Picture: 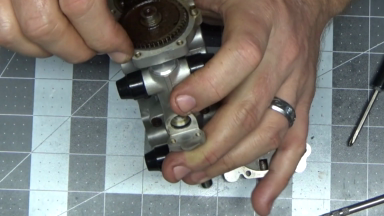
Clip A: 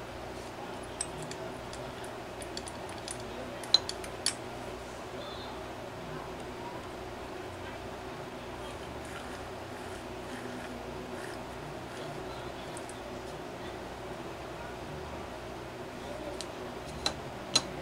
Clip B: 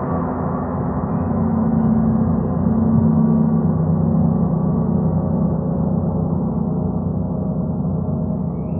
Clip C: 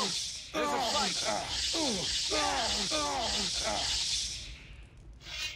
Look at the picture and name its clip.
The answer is A